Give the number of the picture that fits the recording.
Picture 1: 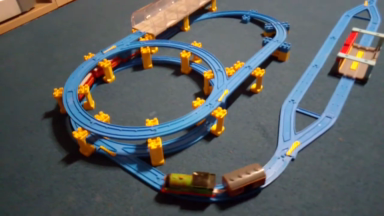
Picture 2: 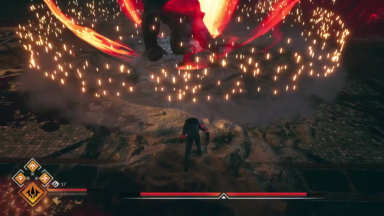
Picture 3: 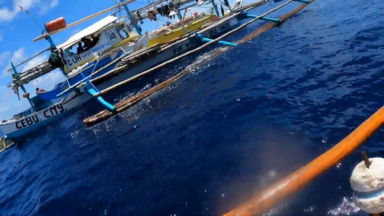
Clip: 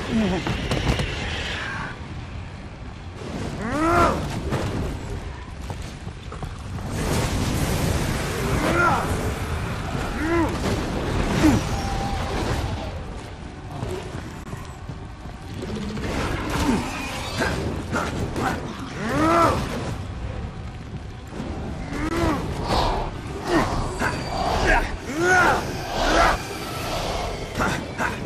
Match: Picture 2